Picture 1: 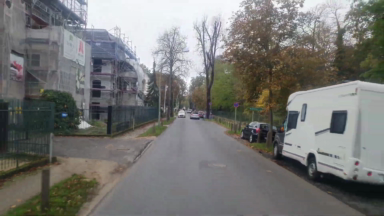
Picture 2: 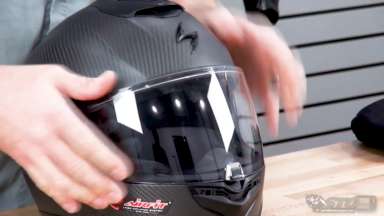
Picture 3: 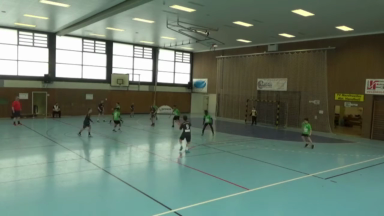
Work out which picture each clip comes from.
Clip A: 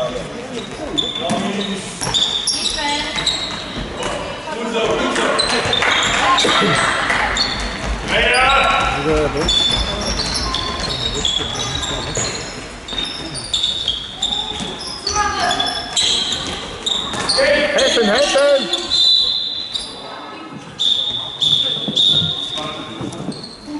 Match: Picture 3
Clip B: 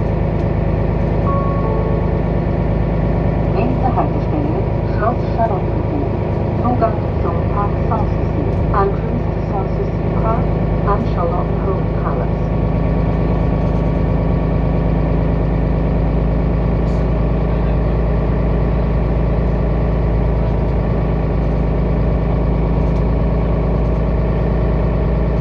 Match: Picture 1